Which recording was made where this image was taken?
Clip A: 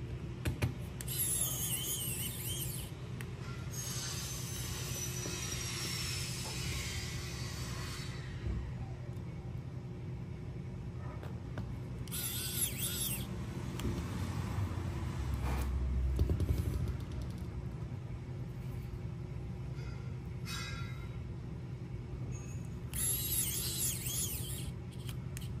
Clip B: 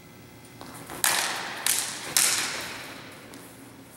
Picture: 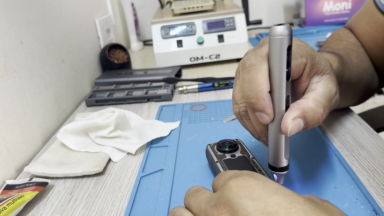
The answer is A